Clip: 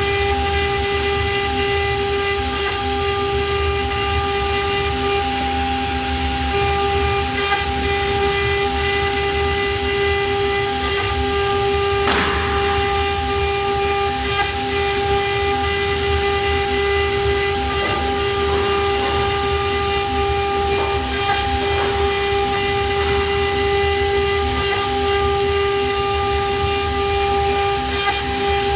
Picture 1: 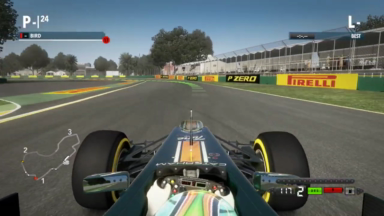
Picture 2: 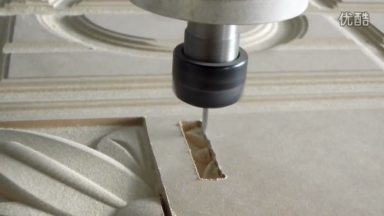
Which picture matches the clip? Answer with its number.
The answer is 2